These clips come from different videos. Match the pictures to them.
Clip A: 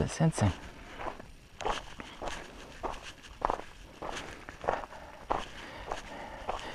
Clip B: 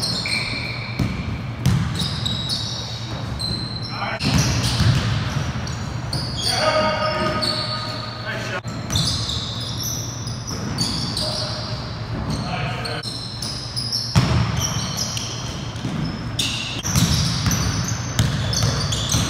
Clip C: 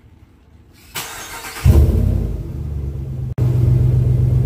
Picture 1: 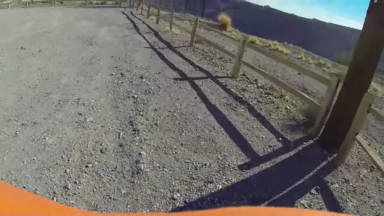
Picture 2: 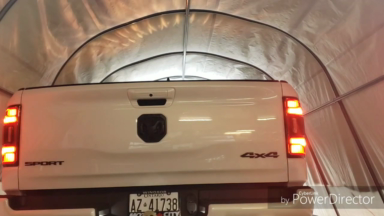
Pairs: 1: A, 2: C